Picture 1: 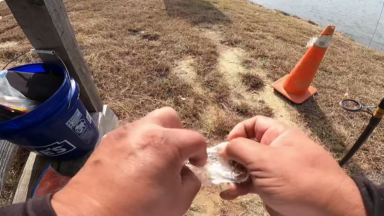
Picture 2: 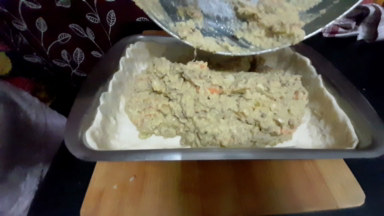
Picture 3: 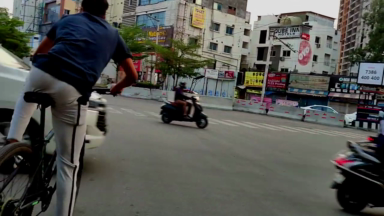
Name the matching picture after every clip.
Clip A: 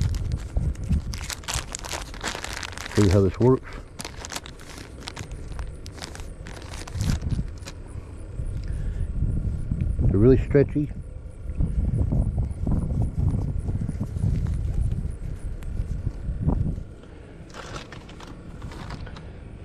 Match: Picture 1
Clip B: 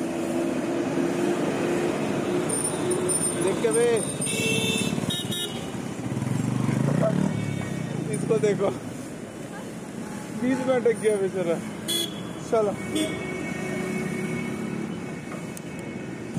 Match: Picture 3